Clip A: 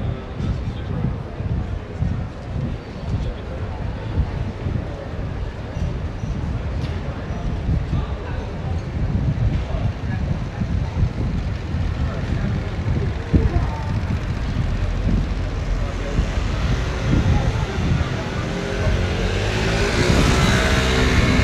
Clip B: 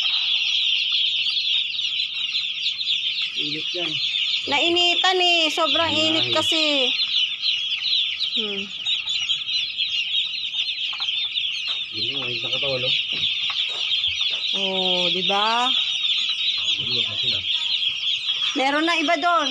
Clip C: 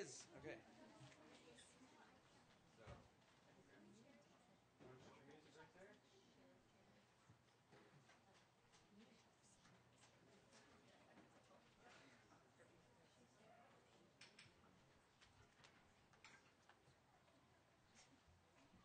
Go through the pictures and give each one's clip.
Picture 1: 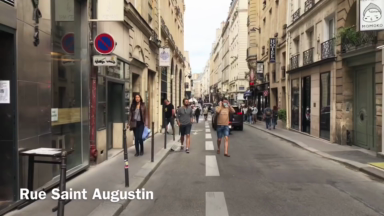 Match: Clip A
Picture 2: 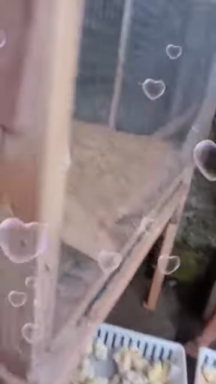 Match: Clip B